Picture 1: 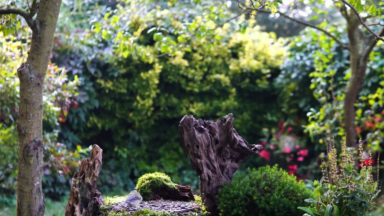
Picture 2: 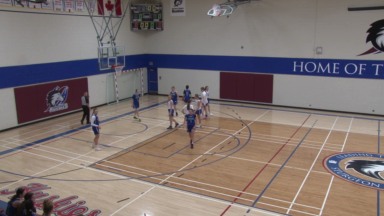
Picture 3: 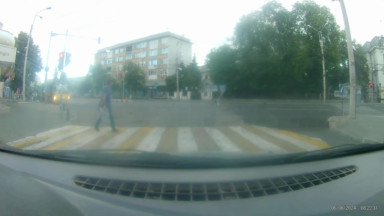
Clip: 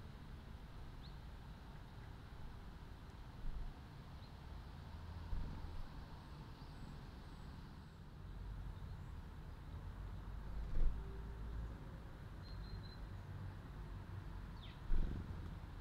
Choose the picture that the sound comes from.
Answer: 1